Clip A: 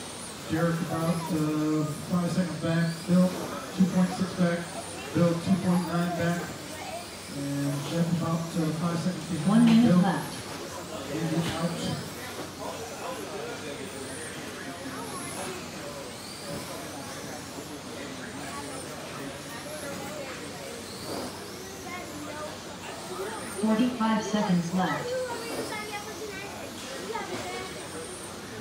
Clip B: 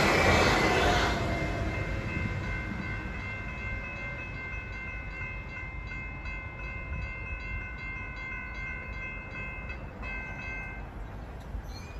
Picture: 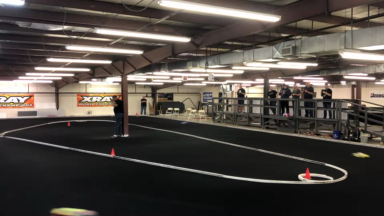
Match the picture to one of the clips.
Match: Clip A